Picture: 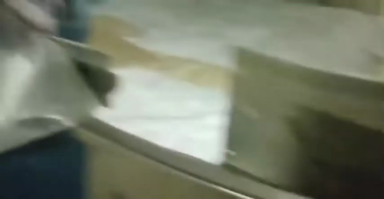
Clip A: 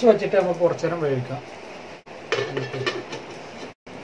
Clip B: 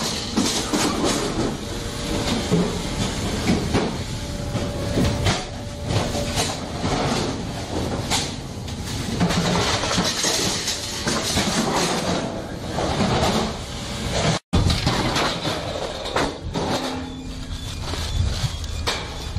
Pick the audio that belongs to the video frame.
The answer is B